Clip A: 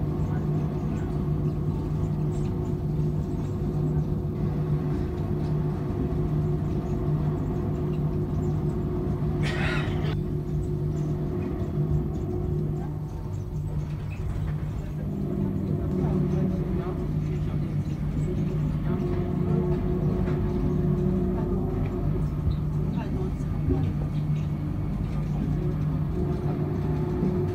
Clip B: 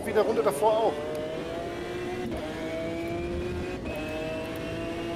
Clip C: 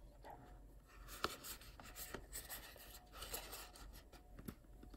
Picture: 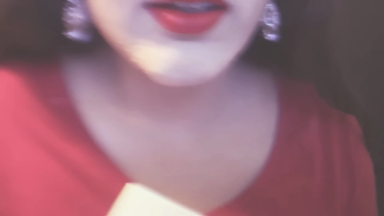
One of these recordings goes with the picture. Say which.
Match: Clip C